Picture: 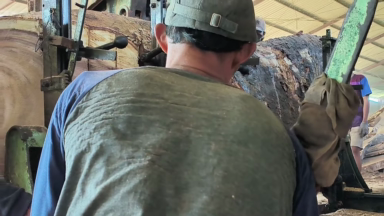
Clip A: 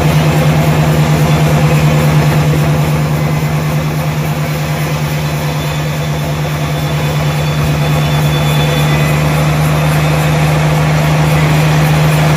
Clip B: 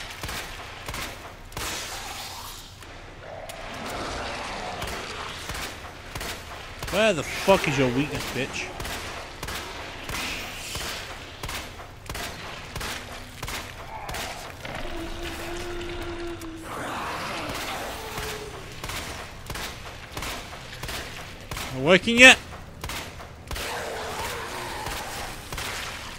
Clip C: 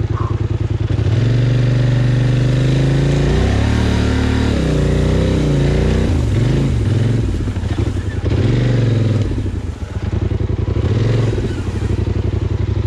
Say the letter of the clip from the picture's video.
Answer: A